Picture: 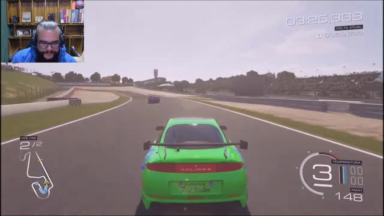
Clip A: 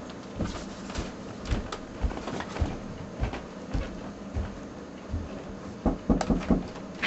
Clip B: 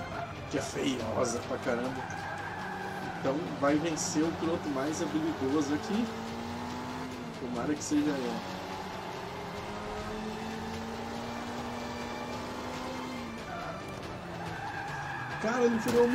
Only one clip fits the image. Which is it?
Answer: B